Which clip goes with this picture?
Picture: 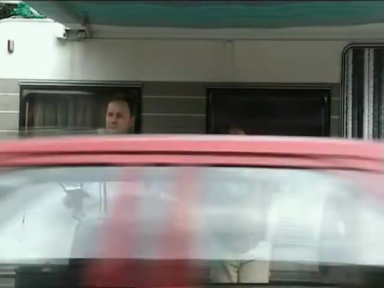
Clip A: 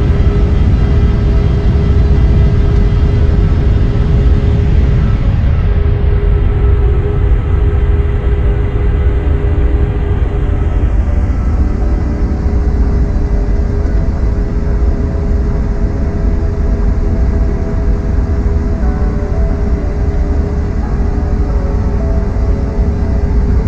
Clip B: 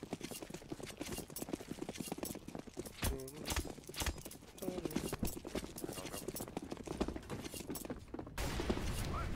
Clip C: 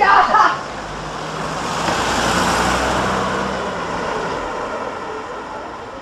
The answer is C